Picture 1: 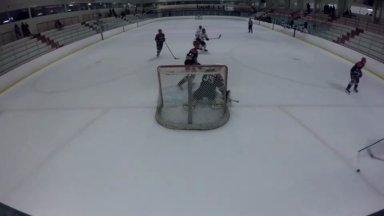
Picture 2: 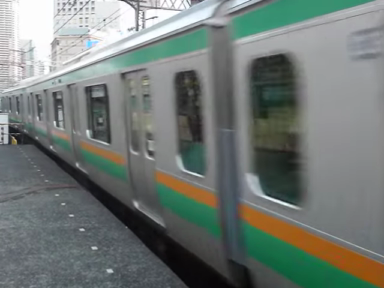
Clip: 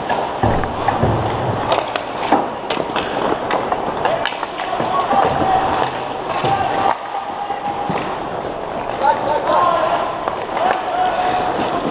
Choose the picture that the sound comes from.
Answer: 1